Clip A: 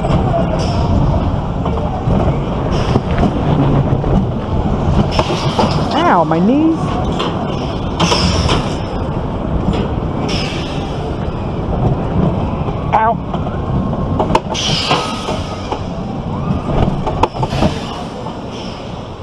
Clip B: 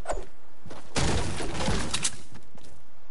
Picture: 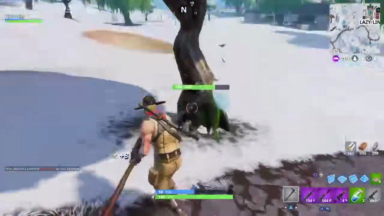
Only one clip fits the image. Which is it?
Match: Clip B